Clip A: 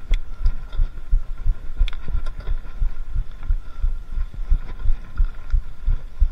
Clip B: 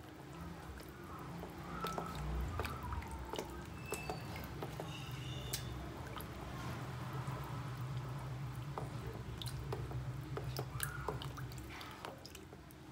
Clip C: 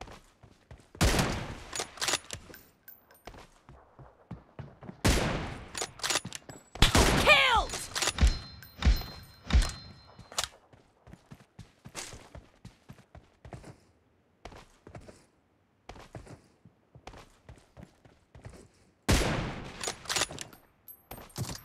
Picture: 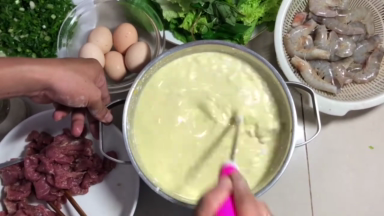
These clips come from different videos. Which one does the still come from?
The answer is B